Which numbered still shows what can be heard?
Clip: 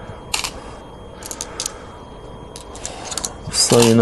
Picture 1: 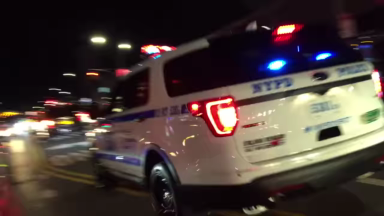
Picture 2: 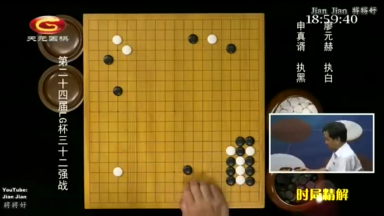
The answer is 2